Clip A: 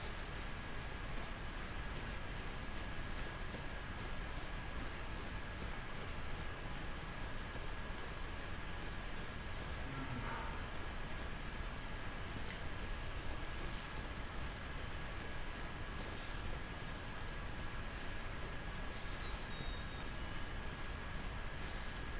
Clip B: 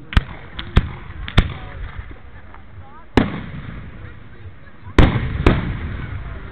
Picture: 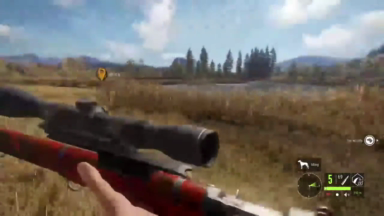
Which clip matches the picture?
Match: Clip A